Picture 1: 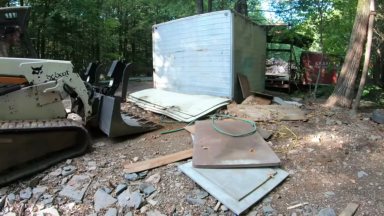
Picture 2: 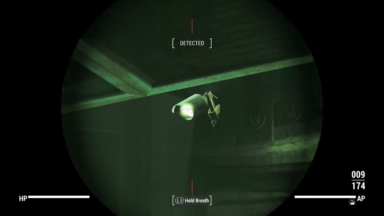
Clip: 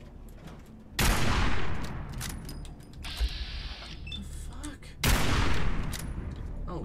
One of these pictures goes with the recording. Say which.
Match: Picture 2